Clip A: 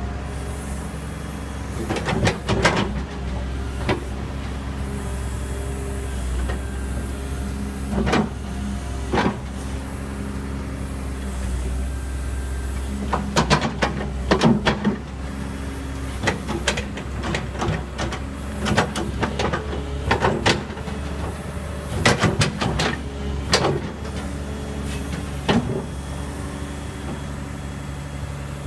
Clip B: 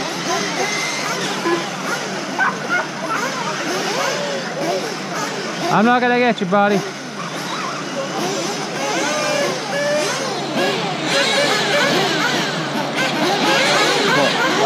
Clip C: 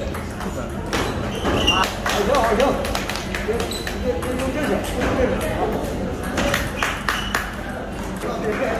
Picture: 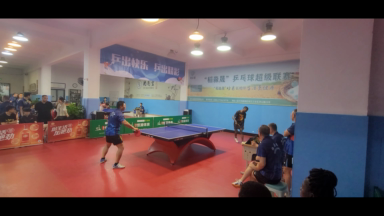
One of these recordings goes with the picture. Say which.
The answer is C